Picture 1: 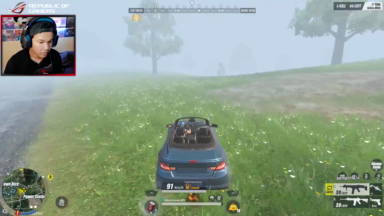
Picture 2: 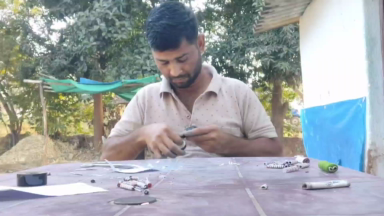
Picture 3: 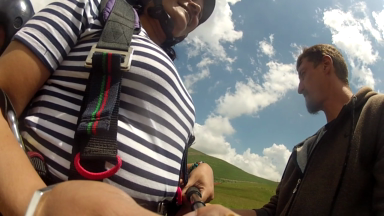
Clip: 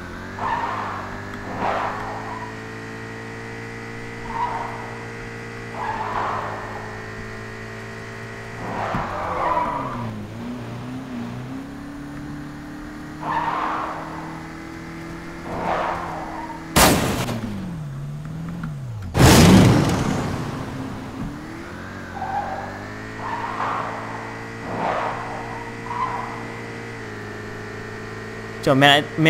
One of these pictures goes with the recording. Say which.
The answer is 1